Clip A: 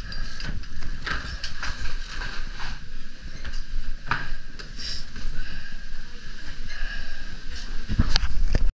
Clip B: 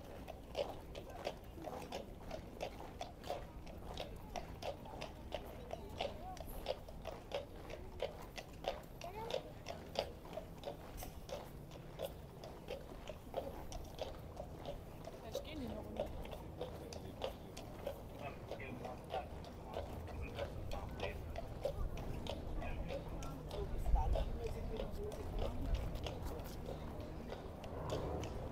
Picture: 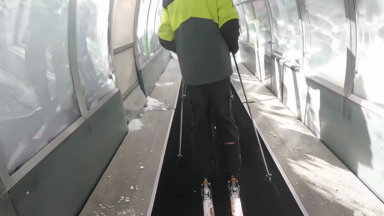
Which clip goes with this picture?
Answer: A